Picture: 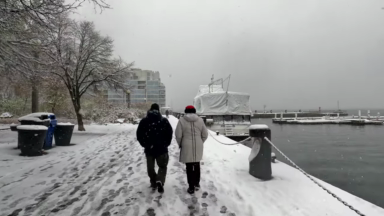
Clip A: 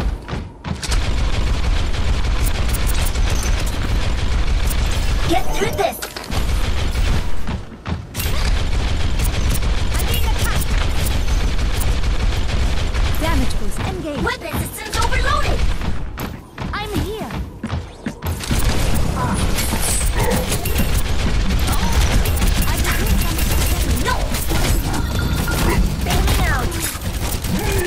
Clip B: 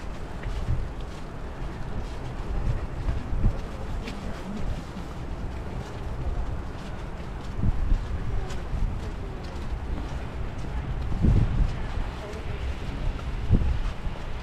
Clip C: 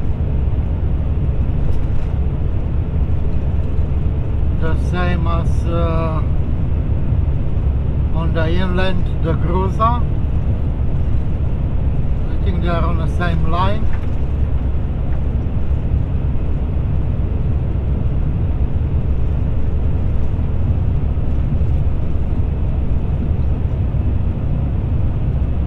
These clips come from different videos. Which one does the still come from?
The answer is B